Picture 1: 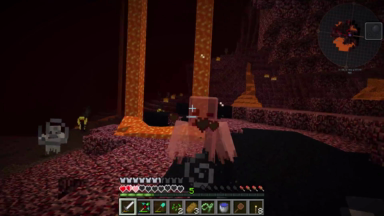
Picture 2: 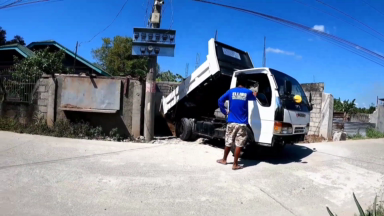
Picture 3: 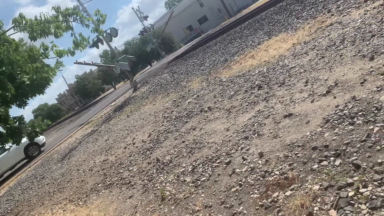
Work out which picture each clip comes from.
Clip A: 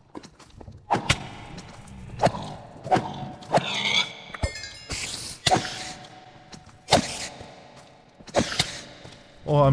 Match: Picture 1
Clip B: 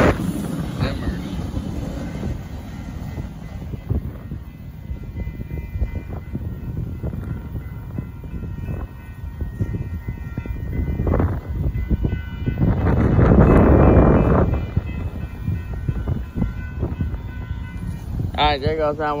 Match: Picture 3